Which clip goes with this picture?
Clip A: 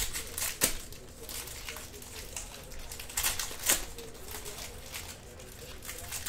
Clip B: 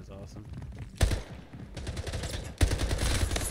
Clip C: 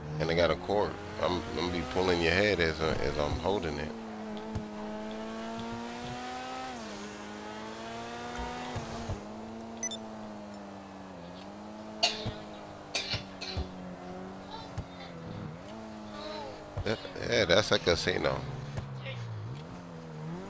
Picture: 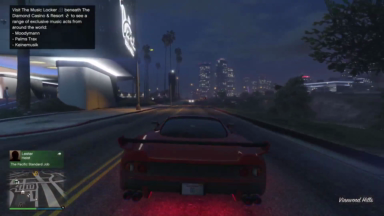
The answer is C